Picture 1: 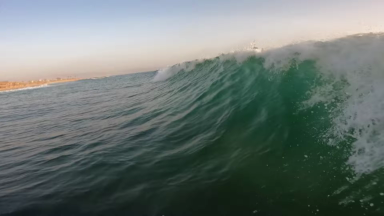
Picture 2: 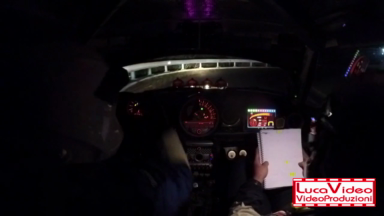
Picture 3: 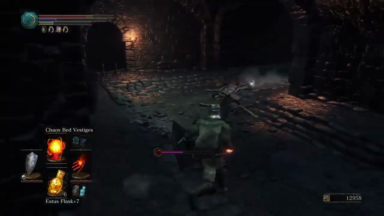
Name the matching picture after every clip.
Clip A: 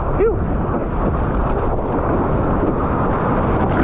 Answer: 1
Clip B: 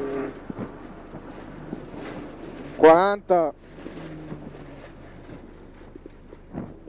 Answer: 2